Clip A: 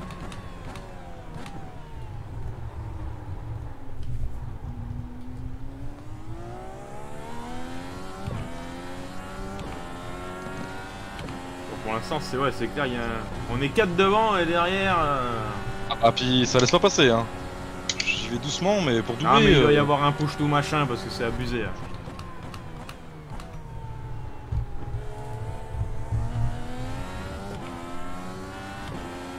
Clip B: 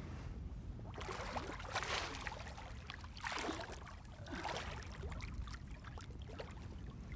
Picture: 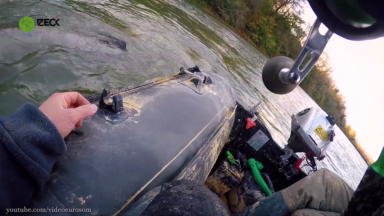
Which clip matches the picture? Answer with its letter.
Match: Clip B